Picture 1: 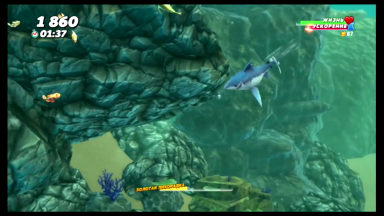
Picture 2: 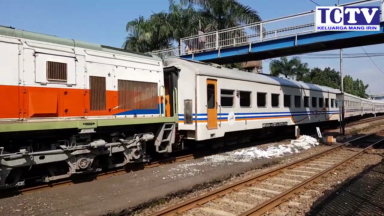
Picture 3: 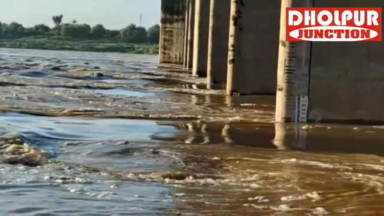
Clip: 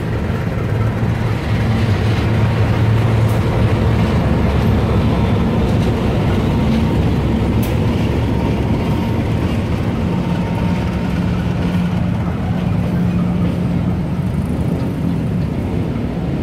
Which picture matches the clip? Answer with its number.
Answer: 2